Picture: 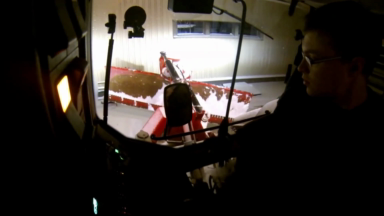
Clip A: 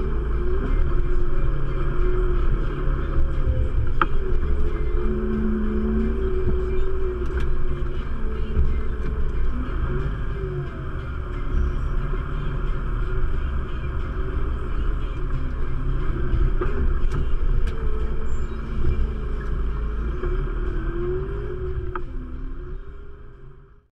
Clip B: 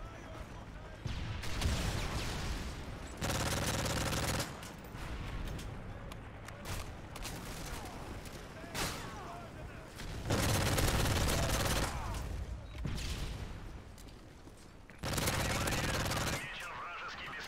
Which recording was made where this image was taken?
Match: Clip A